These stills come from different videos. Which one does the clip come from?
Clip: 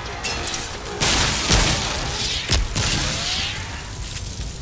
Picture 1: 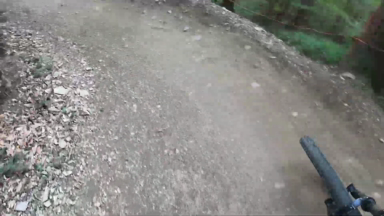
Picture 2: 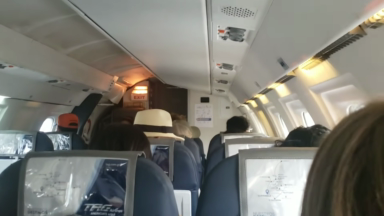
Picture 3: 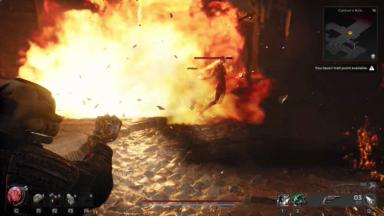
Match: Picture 3